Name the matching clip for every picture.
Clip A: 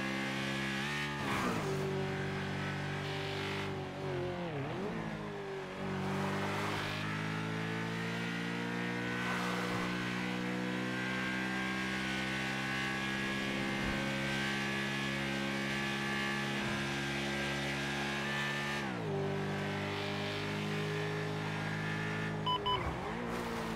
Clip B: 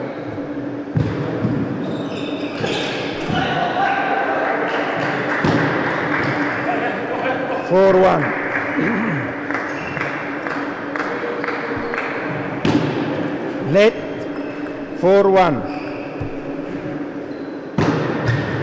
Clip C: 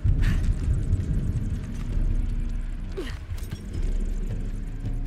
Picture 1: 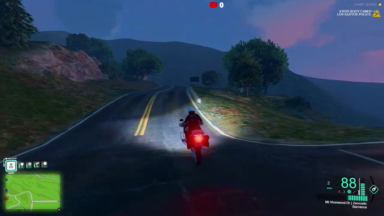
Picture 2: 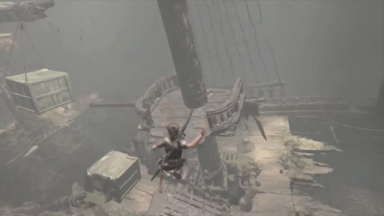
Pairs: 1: A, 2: C